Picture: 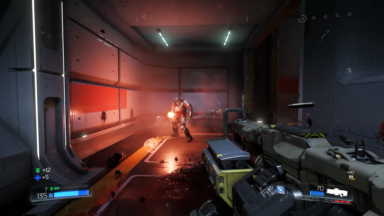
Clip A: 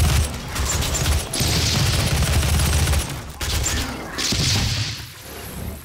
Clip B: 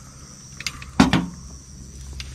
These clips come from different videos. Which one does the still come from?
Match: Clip A